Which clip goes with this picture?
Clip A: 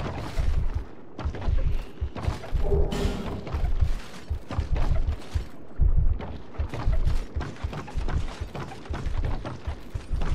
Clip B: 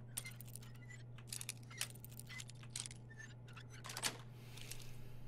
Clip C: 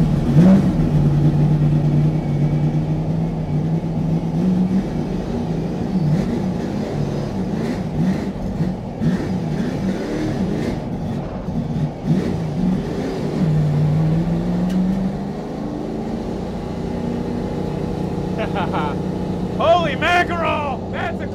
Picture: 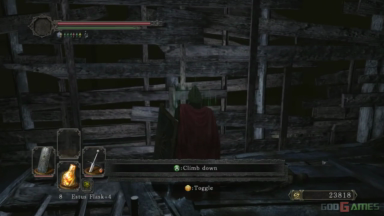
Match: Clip A